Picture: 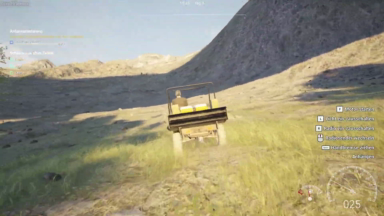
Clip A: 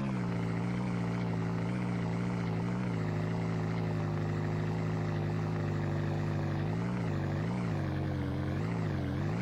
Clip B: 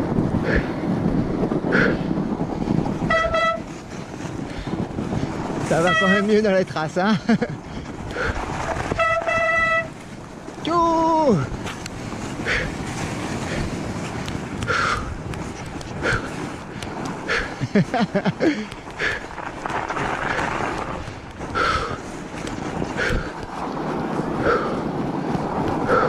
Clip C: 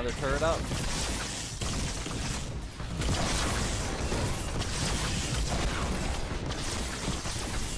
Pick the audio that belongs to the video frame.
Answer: A